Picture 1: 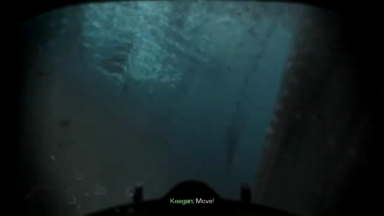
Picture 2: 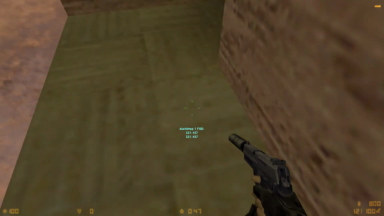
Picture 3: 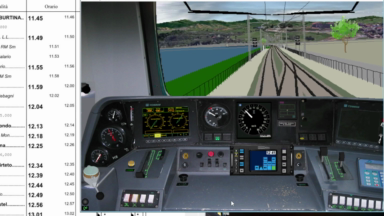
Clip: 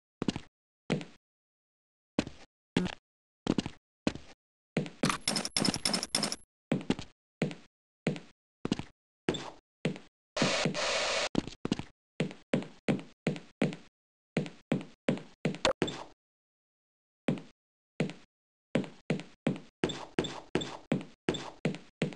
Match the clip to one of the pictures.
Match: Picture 2